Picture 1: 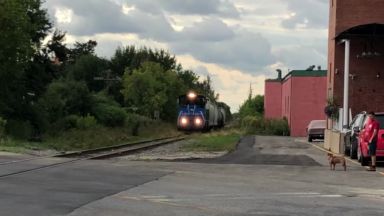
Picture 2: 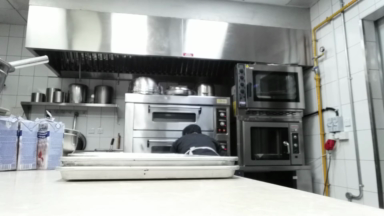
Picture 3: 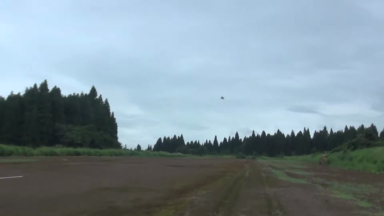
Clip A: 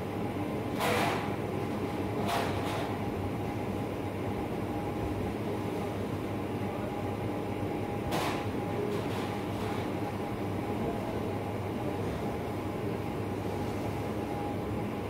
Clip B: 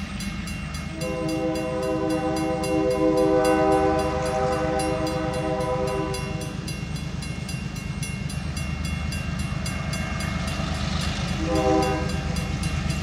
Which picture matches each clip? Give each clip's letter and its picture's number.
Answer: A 2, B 1